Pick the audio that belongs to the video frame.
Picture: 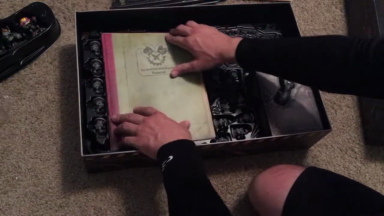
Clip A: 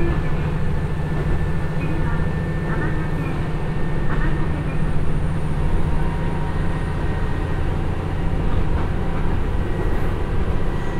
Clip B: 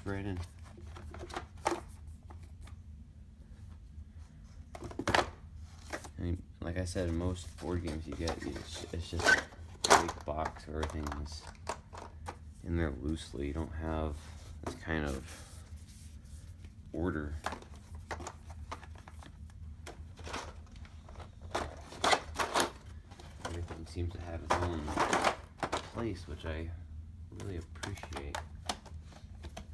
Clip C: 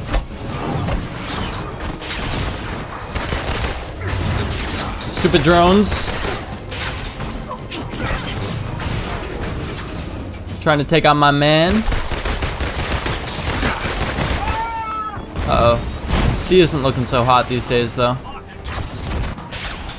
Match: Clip B